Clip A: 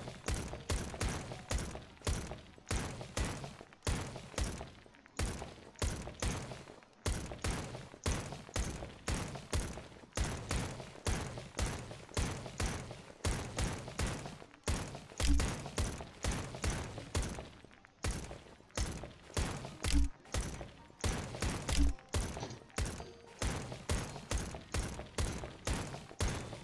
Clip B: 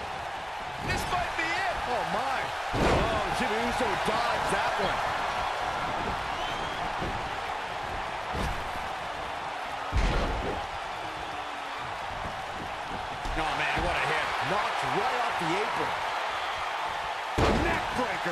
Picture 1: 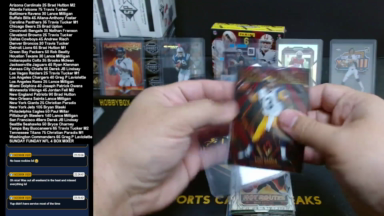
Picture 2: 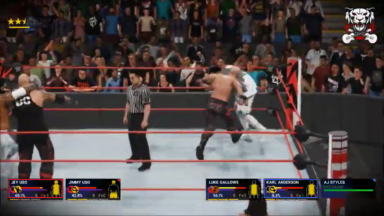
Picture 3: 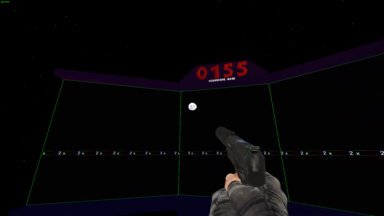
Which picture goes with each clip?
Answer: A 3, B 2